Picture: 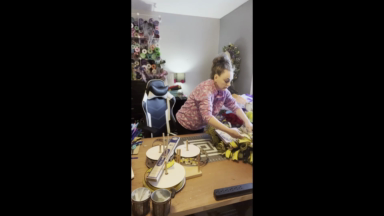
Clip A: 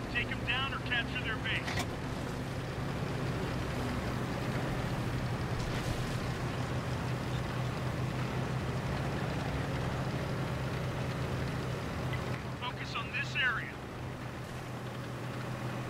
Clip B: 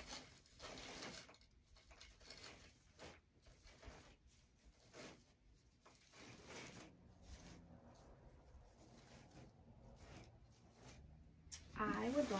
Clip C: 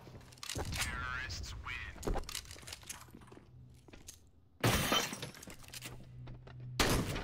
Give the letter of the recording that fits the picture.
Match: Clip B